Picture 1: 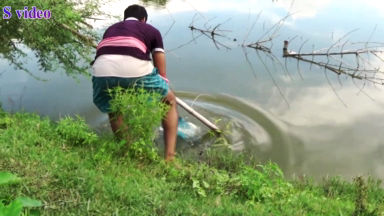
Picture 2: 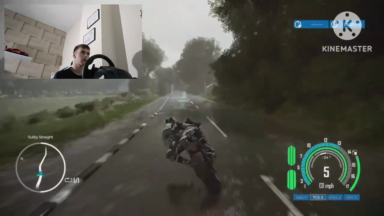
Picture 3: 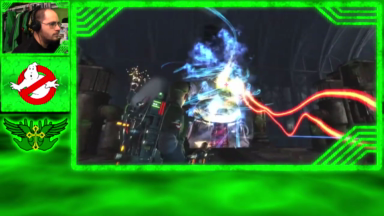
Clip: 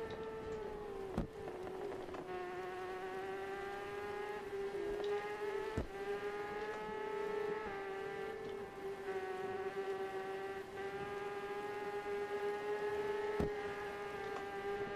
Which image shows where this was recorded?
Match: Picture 2